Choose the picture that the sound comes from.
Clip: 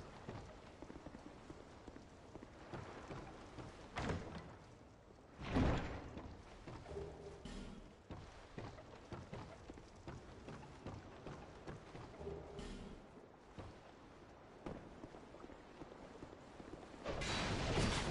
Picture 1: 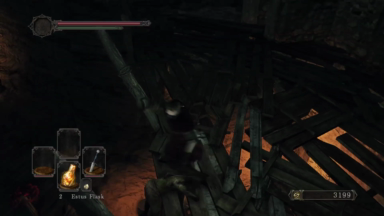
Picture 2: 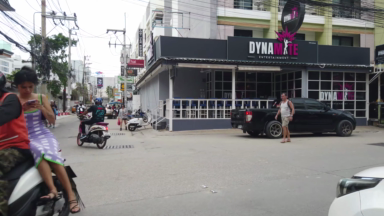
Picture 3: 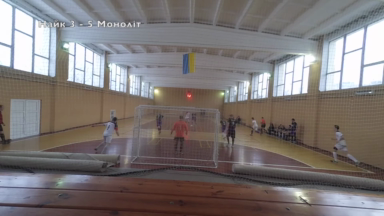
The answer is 1